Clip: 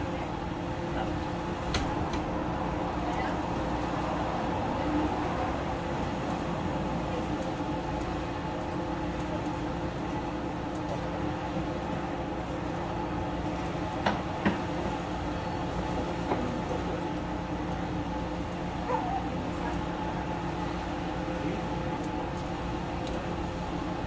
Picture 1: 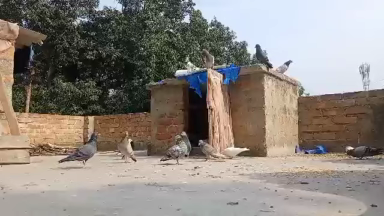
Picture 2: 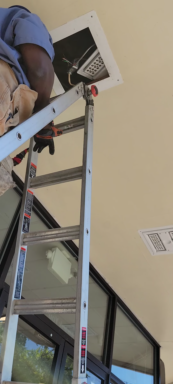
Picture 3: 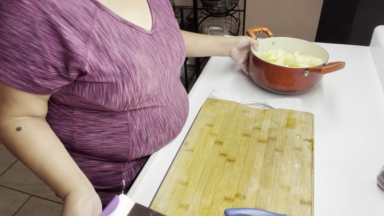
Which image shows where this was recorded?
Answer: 2